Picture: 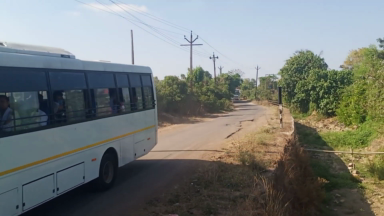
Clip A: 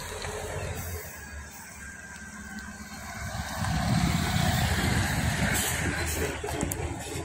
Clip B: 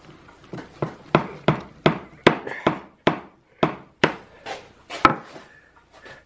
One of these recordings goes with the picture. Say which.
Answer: A